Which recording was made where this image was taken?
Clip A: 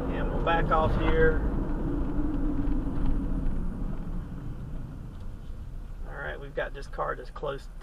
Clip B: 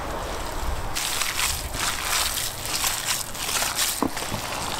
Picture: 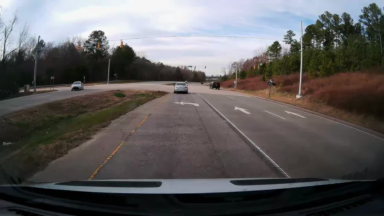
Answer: A